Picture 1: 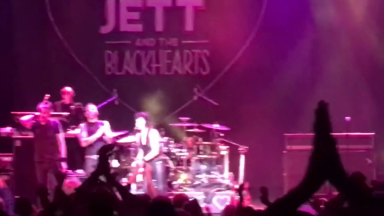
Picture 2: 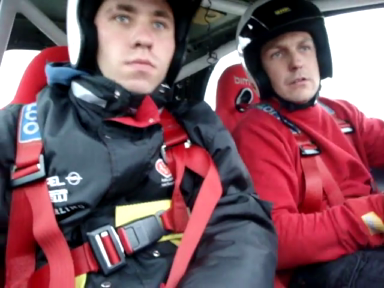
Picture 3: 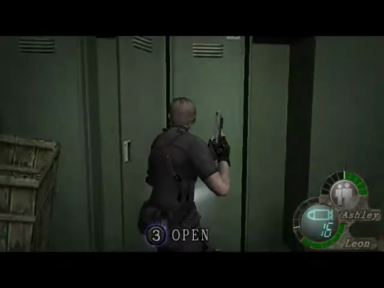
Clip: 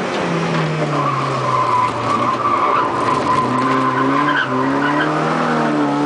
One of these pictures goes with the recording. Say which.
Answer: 2